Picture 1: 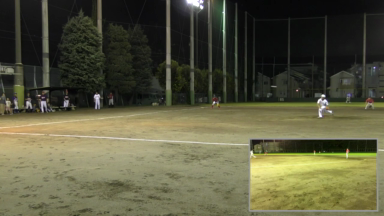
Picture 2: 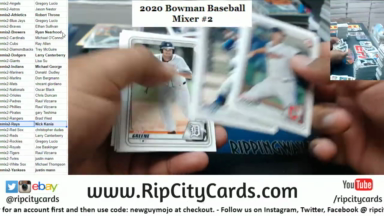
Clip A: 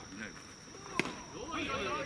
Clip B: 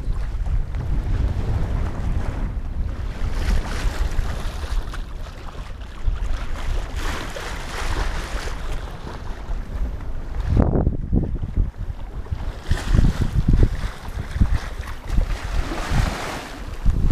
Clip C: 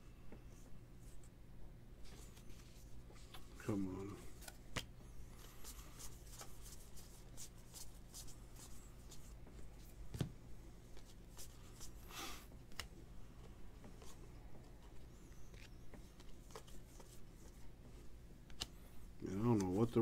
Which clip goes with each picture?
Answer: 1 A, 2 C